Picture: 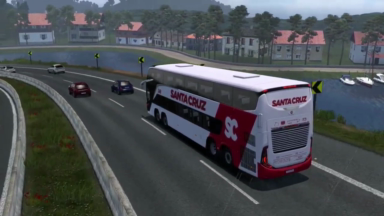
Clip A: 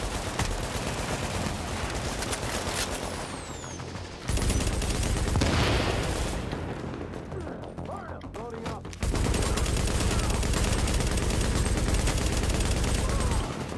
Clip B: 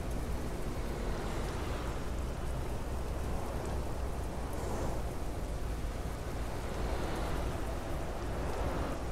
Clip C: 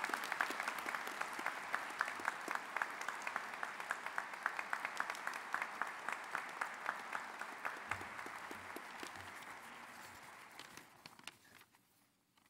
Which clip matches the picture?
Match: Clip B